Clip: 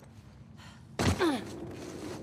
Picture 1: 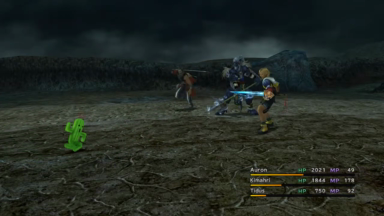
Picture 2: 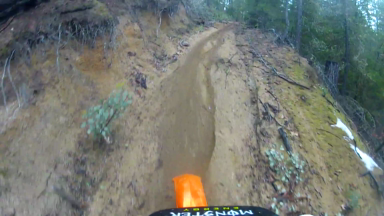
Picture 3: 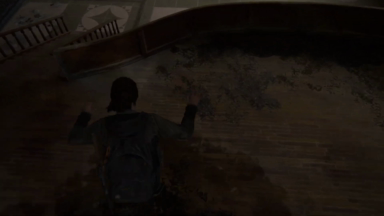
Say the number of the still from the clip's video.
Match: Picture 3